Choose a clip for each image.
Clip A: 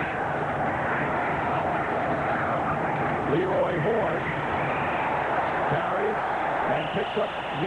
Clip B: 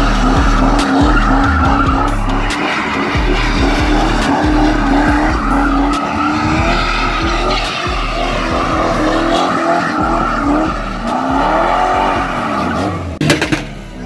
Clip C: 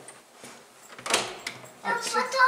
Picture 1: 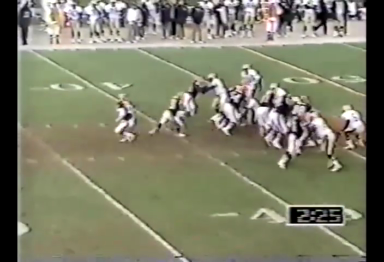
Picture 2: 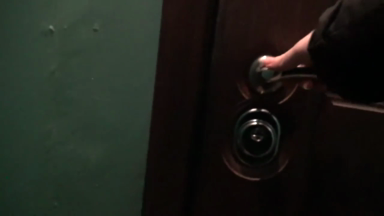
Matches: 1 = A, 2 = C